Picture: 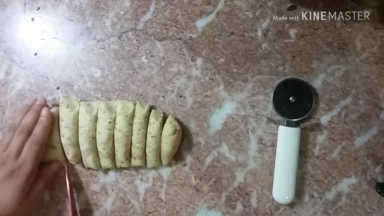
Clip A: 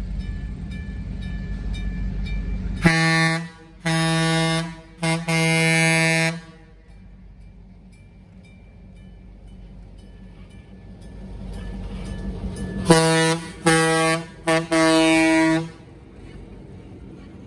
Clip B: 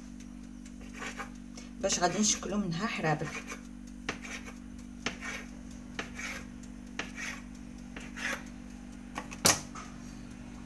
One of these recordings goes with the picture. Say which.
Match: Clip B